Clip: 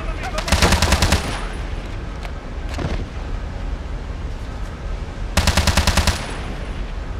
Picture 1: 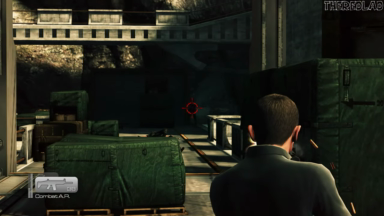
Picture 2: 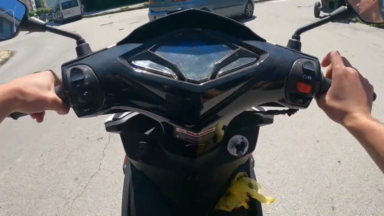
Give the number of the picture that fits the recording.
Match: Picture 1